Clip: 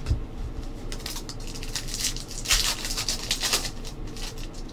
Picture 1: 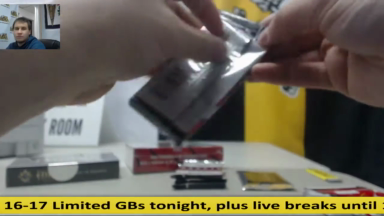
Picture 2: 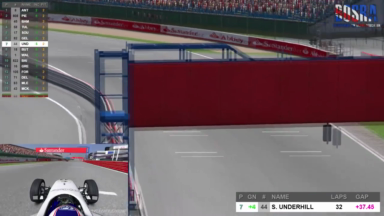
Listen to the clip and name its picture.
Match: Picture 1